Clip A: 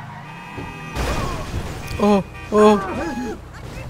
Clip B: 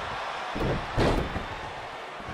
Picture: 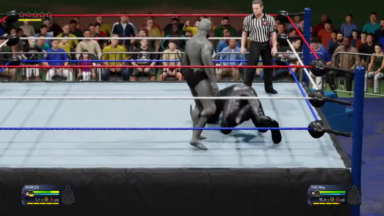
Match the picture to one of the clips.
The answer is B